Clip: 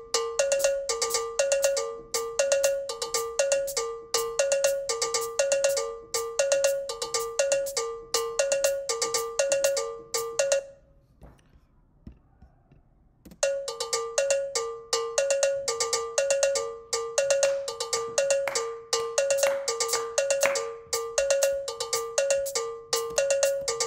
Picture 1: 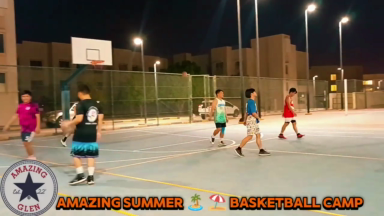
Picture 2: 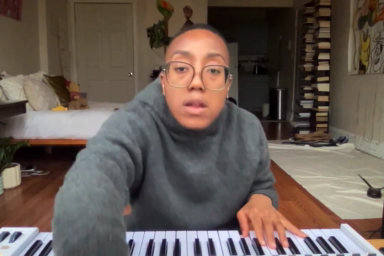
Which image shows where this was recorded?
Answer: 2